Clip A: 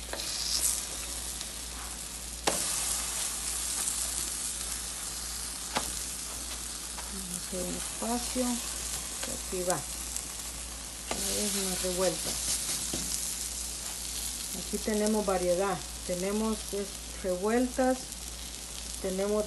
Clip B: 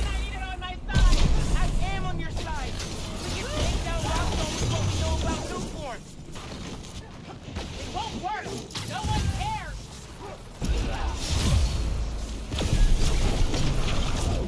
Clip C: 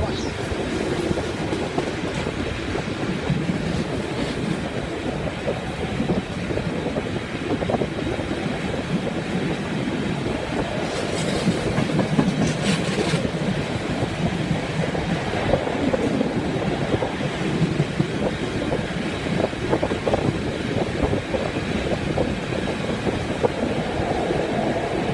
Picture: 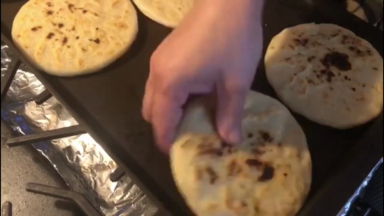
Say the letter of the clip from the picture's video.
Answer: A